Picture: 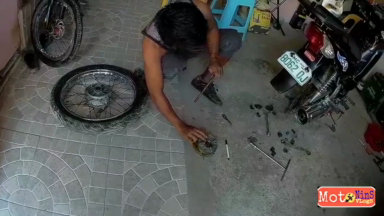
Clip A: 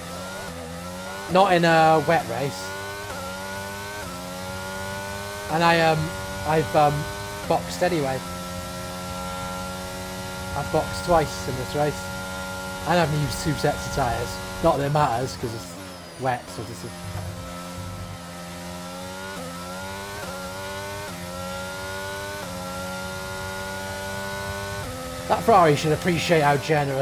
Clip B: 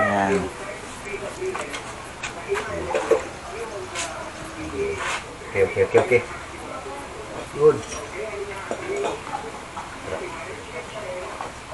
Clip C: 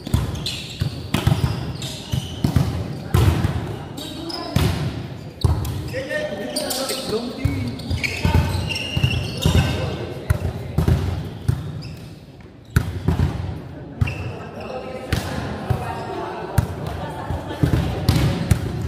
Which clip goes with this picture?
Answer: B